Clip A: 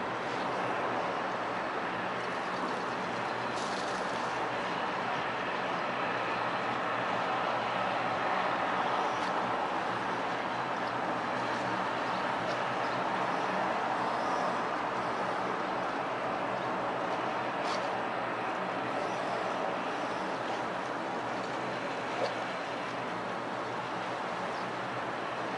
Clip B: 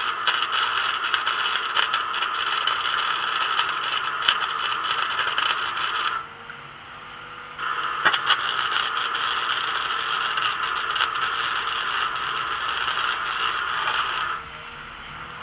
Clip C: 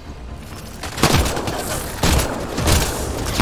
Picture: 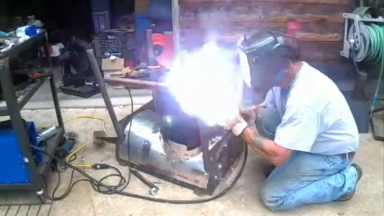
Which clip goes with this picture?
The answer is B